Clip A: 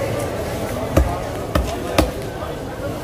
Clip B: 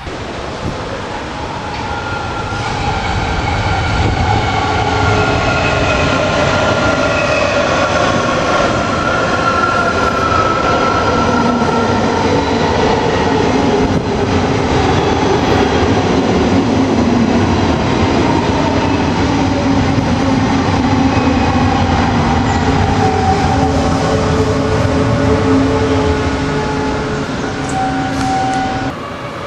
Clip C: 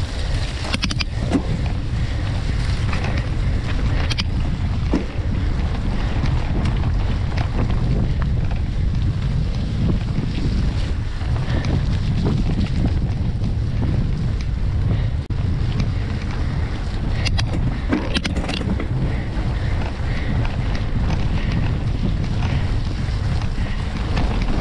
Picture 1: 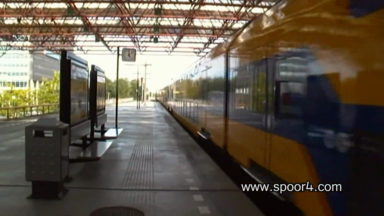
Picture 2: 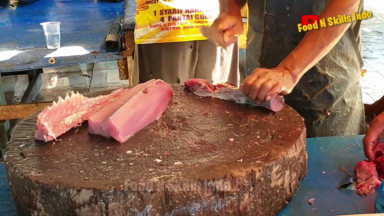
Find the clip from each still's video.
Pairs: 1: B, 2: A